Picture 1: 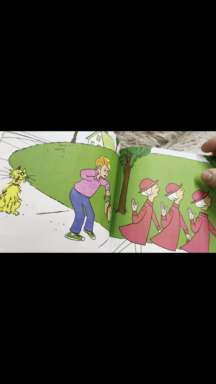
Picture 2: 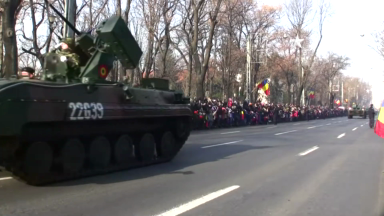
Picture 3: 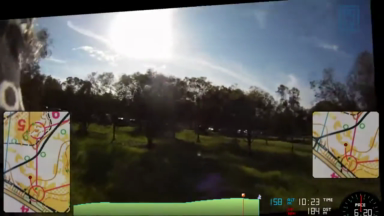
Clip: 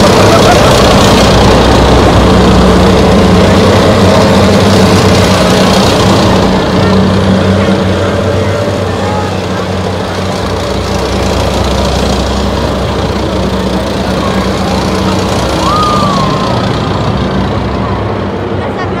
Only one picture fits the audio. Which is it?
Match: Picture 2